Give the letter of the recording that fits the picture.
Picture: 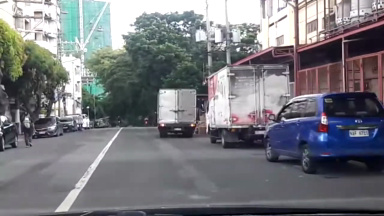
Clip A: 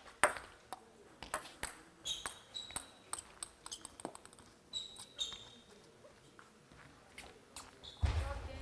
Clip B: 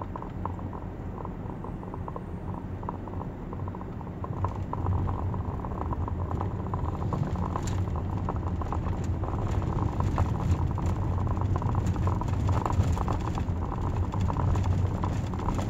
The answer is B